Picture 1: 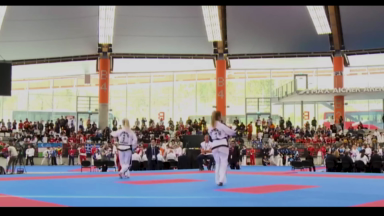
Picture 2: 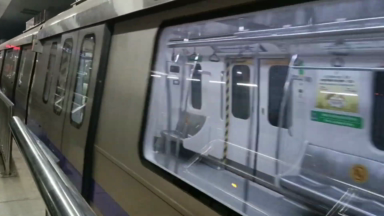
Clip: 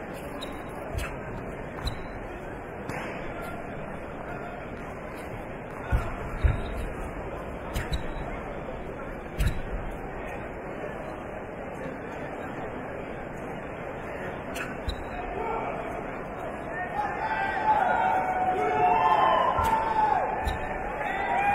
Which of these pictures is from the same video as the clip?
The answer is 1